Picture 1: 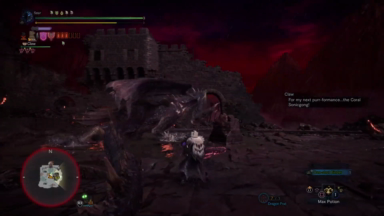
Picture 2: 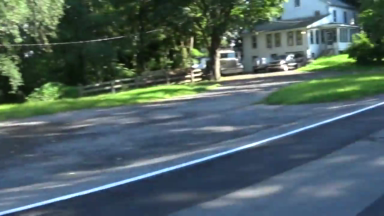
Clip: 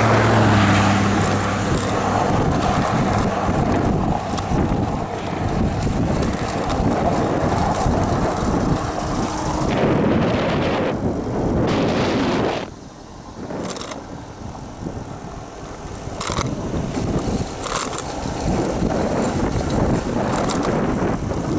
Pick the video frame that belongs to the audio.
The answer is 2